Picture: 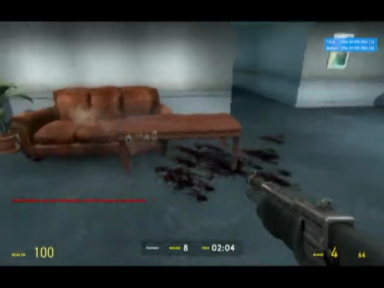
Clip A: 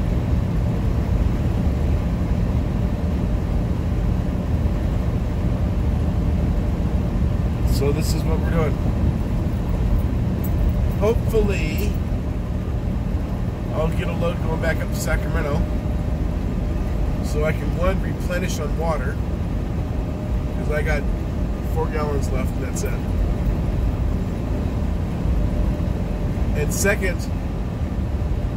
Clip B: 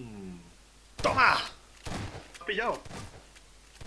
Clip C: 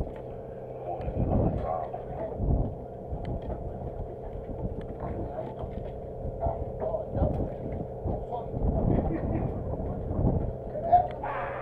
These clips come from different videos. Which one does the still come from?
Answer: B